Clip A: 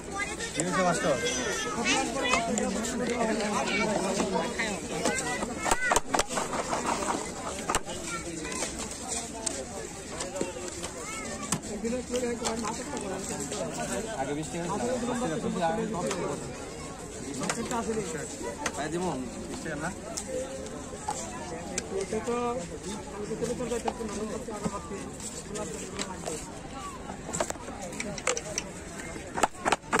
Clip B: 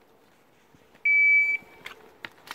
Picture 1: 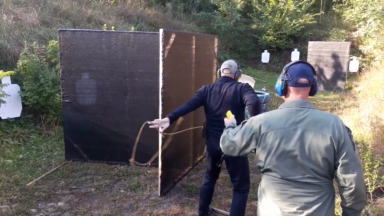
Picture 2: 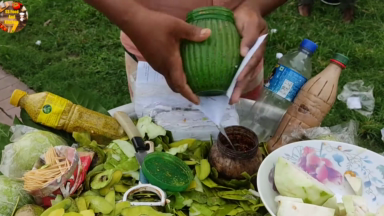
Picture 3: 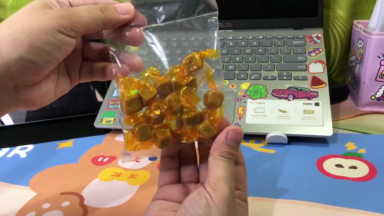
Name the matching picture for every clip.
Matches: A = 2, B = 1